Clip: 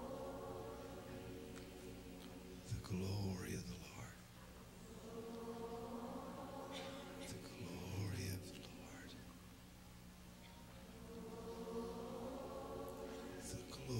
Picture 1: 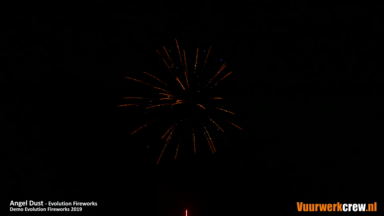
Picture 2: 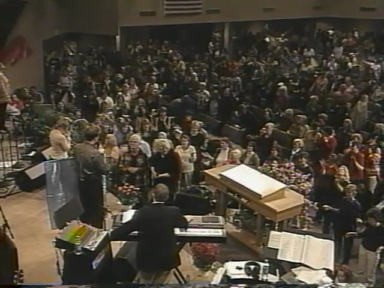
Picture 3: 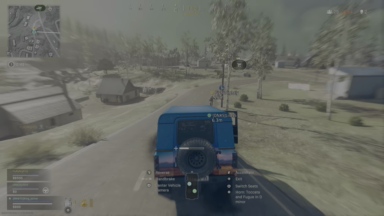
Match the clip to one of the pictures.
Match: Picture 2